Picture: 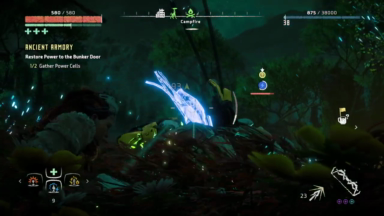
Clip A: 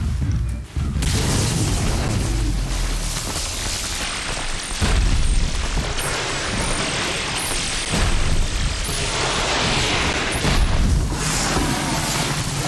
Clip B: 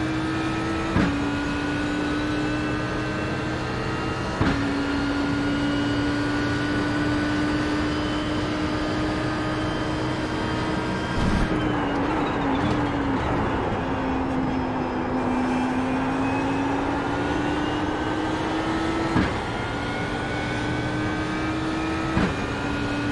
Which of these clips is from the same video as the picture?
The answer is A